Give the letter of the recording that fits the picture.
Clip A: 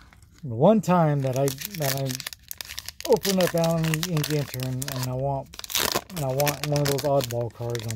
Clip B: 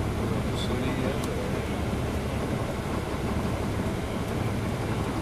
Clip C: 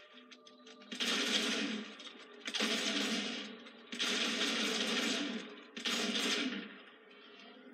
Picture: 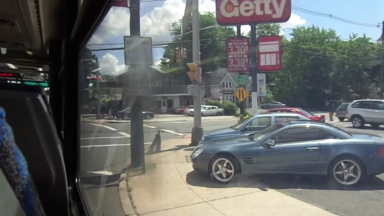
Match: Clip B